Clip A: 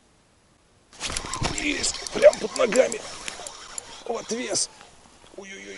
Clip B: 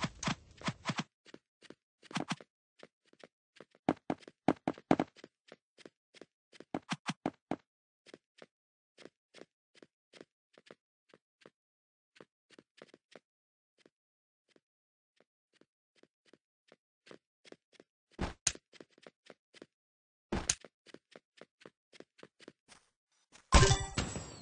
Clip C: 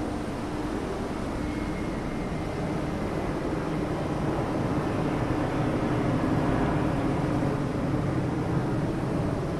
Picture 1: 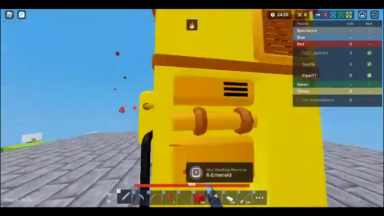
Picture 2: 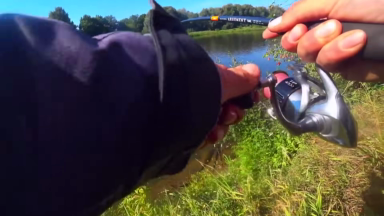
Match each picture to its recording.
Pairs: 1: B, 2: A